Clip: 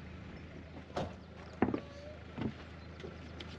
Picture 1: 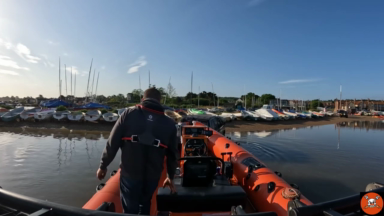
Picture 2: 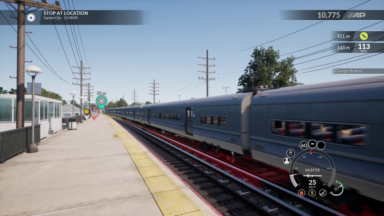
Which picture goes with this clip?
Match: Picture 1